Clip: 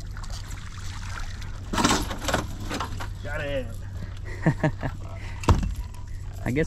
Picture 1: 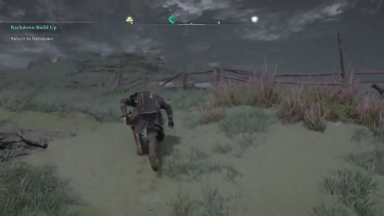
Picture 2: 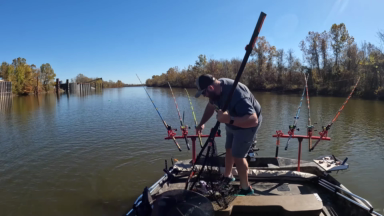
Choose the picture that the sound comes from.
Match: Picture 2